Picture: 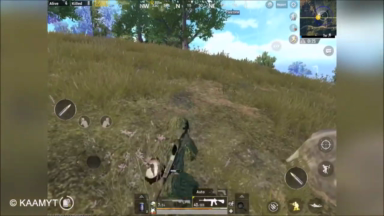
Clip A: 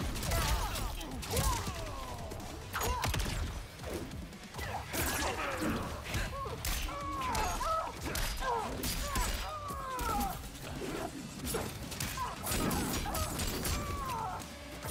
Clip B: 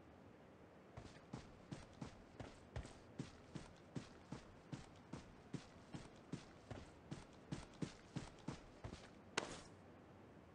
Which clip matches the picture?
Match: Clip B